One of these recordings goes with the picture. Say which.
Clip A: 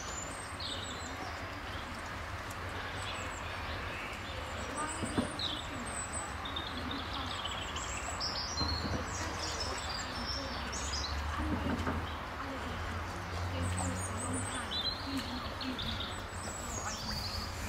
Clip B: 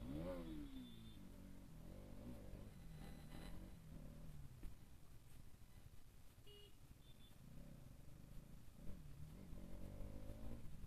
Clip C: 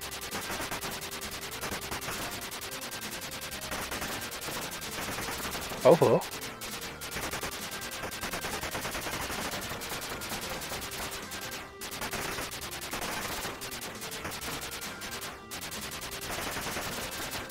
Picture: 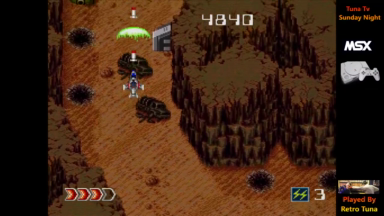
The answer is C